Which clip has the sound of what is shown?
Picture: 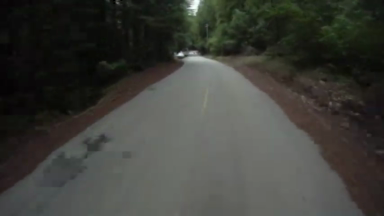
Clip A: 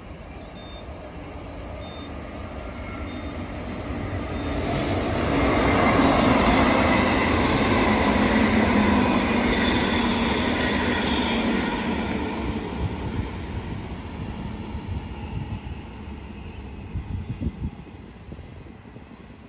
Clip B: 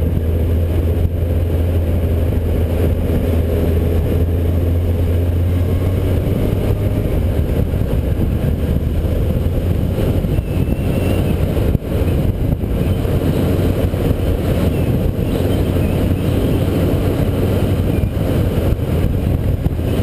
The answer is B